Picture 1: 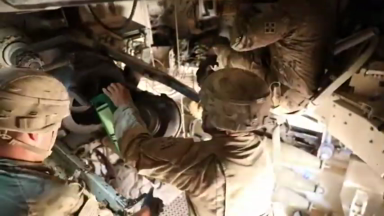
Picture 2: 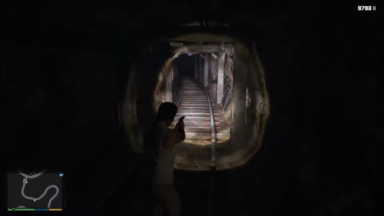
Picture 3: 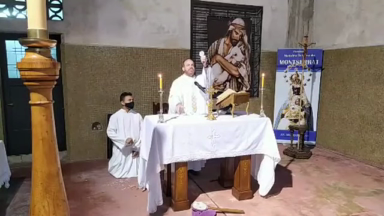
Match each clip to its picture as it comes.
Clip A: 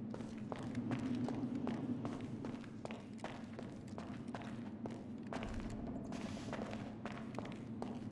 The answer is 2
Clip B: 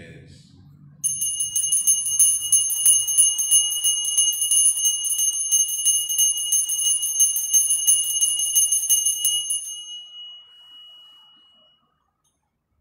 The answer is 3